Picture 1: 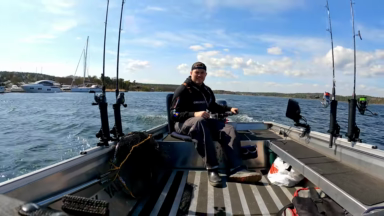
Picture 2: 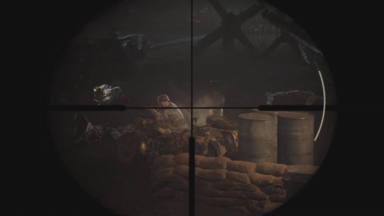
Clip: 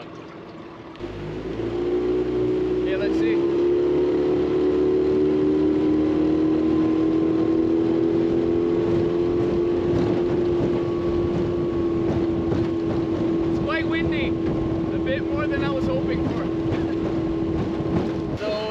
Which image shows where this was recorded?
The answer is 1